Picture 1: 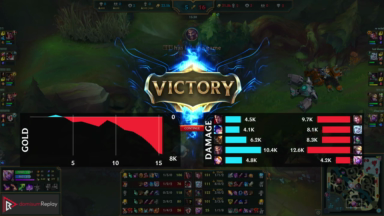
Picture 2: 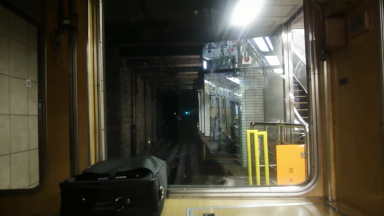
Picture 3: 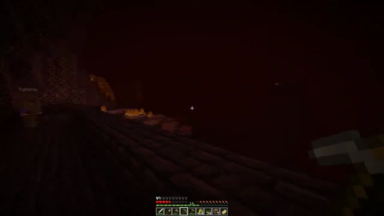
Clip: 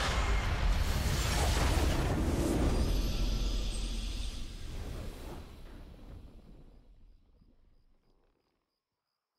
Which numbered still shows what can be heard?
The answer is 1